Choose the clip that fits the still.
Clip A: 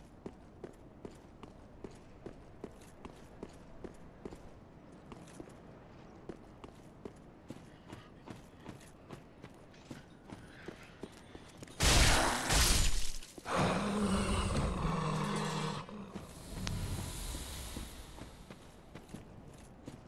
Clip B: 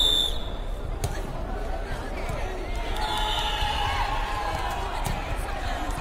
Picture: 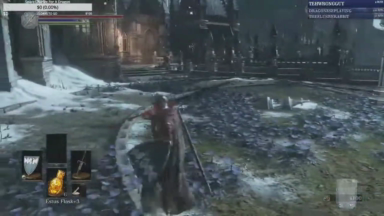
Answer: A